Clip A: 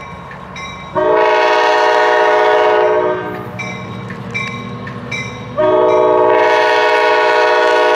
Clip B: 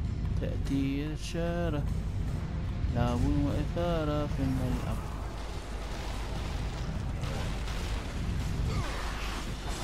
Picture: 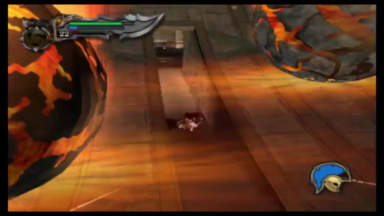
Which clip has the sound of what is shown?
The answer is B